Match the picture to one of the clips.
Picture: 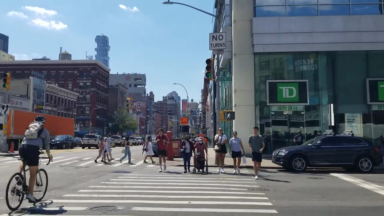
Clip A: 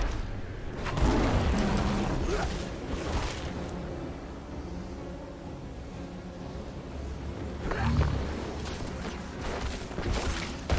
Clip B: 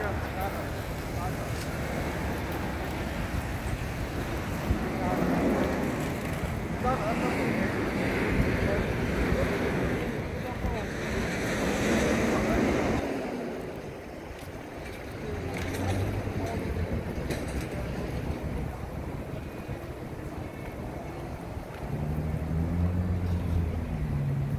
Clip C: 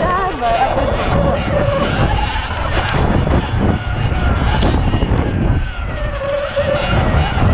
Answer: B